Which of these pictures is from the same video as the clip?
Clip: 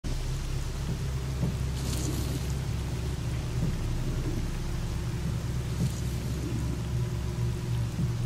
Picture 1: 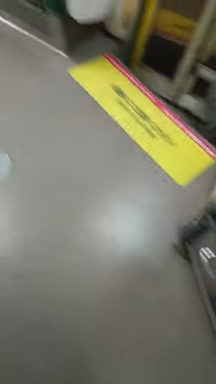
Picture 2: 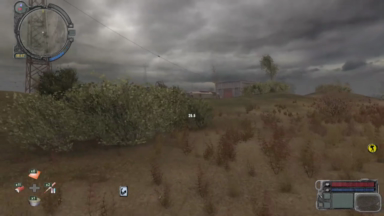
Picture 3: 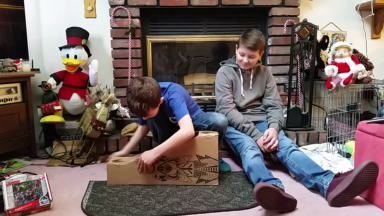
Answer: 2